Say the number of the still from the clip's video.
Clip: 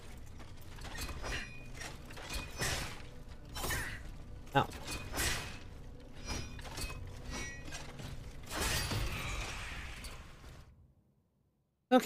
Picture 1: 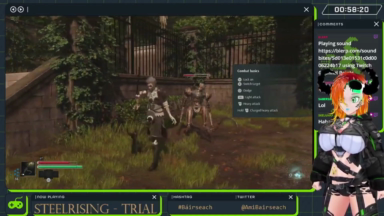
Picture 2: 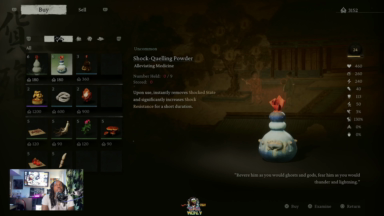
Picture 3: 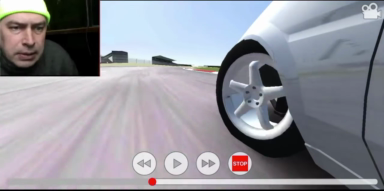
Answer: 1